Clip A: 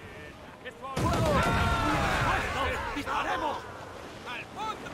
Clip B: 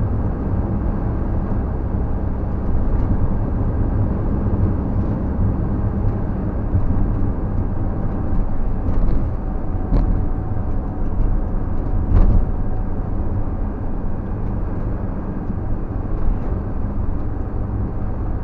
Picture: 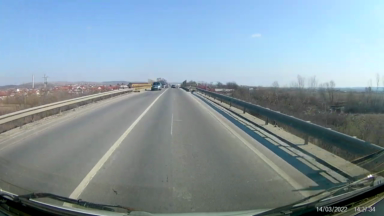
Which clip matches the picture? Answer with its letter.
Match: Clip B